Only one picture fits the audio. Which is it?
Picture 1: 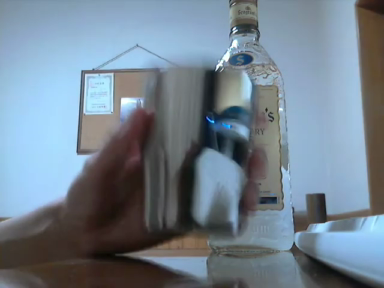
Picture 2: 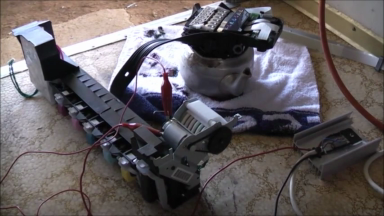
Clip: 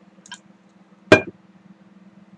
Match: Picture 1